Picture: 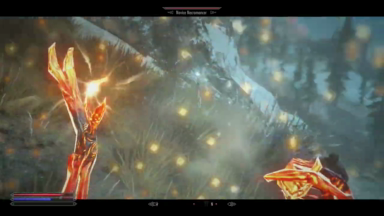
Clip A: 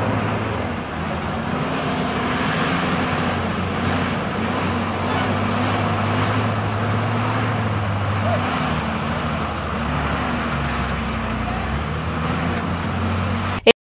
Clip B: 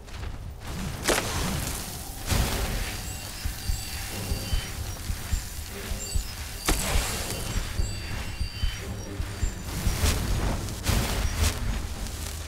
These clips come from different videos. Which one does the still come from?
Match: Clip B